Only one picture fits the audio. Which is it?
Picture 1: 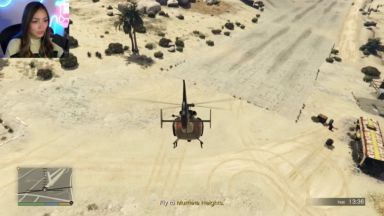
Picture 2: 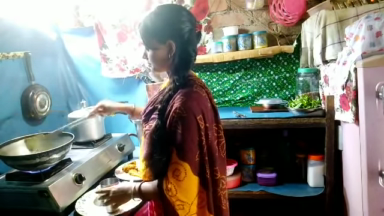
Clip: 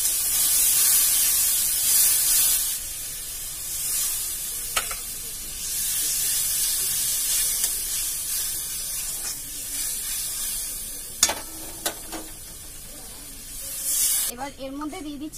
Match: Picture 2